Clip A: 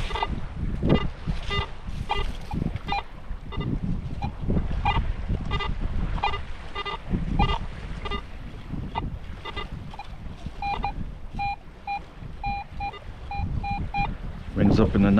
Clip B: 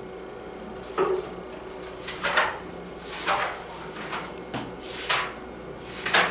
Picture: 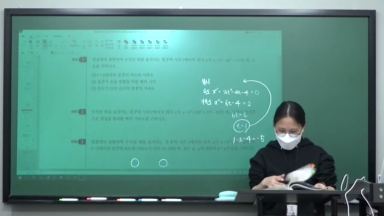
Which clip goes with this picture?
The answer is B